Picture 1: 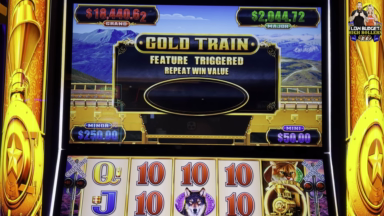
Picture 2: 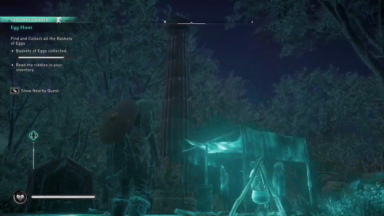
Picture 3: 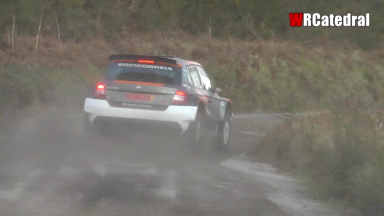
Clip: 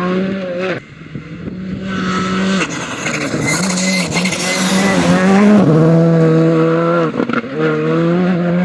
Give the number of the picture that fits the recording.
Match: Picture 3